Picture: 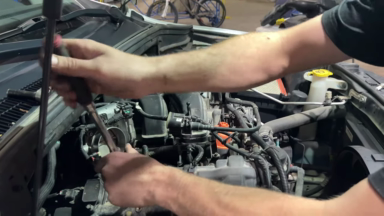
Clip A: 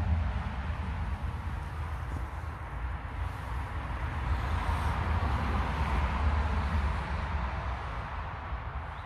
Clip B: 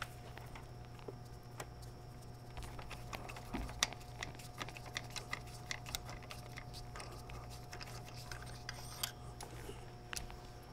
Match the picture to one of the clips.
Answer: B